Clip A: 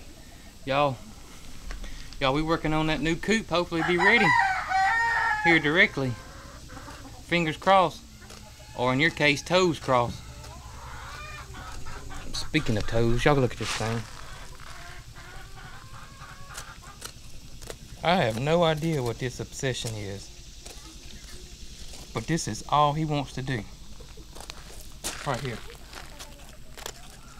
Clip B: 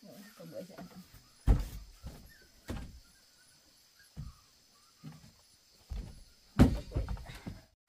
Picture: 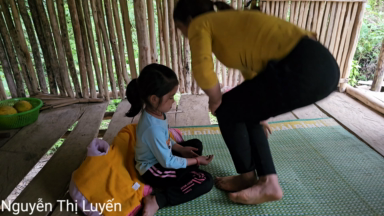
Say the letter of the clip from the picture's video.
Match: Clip B